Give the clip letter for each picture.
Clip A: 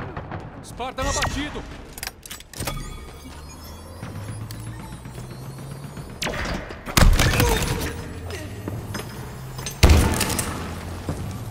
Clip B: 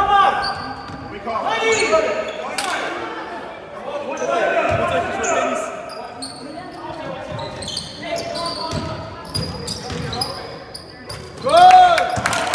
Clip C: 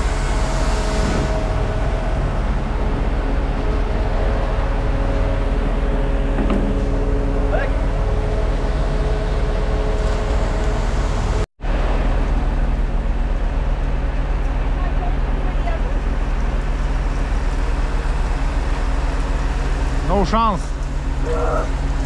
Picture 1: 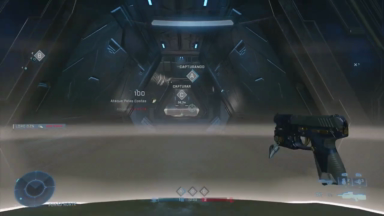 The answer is A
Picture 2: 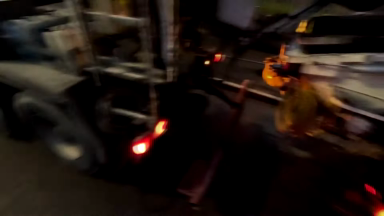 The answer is C